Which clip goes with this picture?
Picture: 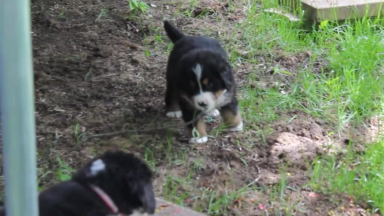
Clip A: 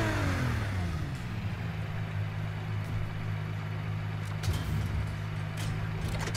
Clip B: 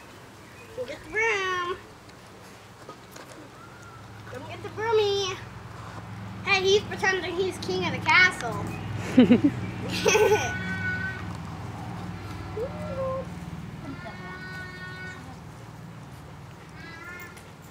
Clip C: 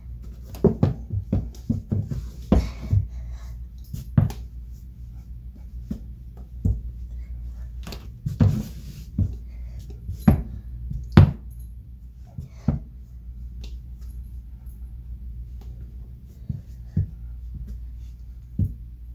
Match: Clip B